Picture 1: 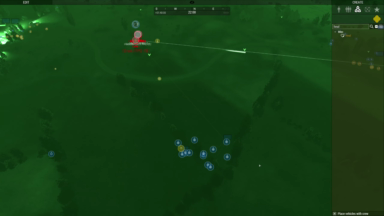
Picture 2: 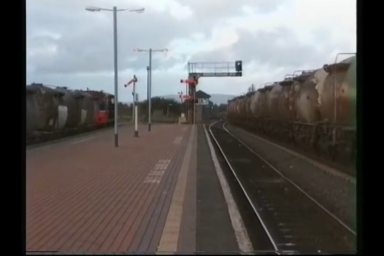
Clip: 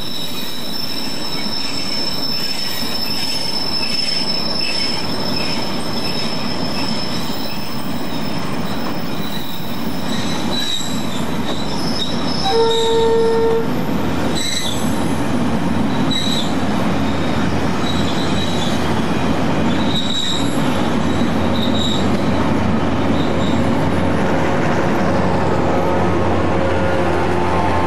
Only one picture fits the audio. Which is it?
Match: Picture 2